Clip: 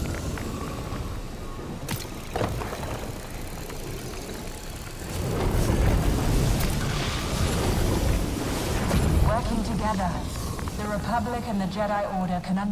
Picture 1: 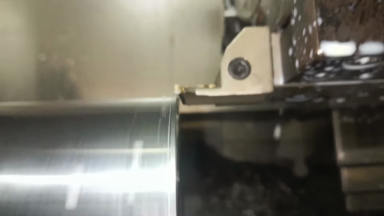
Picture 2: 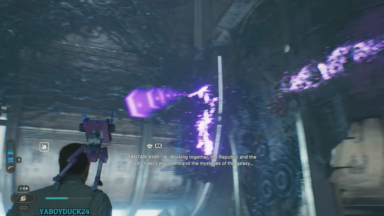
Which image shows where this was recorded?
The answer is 2